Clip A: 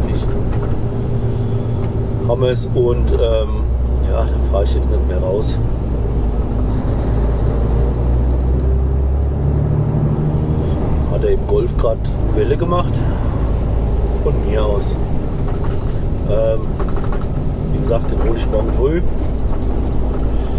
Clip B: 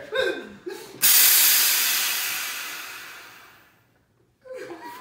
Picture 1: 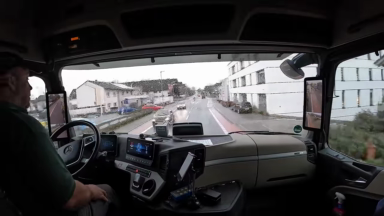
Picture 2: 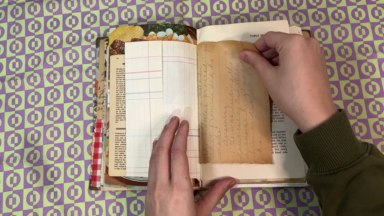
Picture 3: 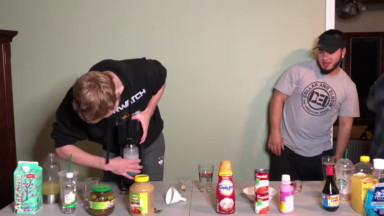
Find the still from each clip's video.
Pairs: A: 1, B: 3